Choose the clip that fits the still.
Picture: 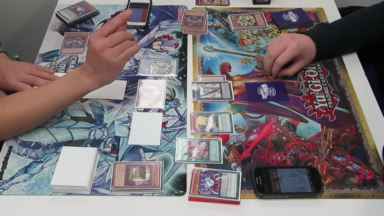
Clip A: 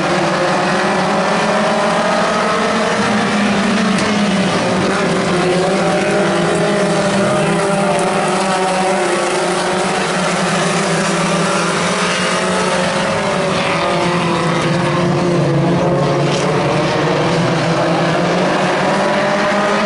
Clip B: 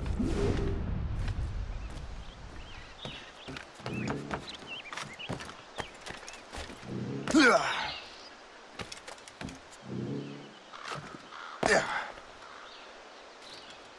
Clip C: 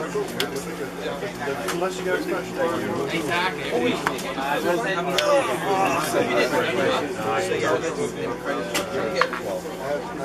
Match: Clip C